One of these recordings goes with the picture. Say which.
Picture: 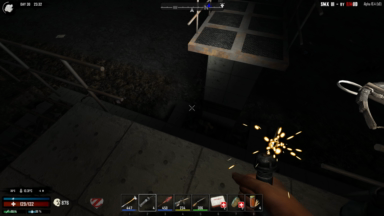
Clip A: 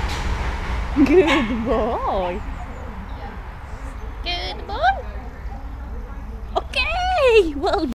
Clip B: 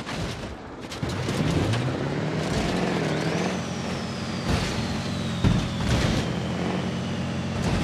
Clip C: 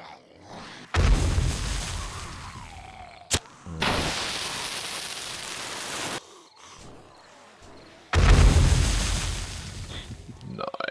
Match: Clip C